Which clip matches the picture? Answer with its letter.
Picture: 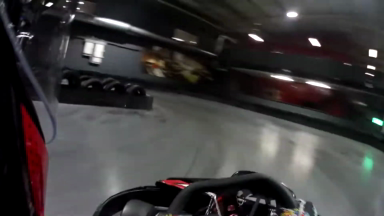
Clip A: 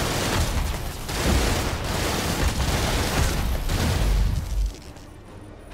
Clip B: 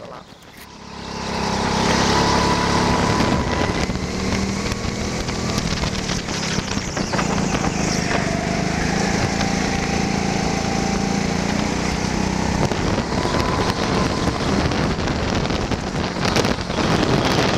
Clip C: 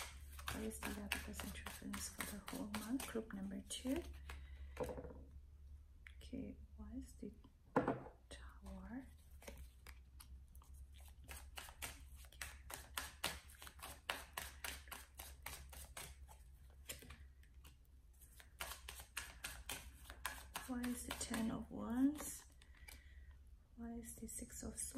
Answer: B